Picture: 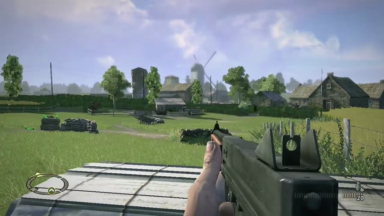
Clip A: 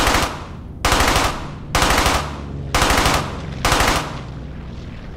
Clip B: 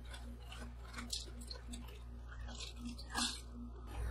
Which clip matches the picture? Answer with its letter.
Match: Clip A